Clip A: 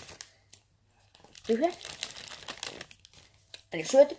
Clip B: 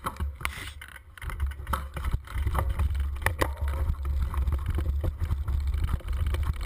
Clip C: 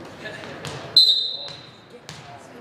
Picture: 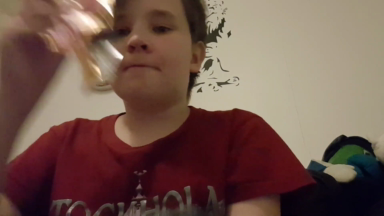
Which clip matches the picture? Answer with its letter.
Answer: A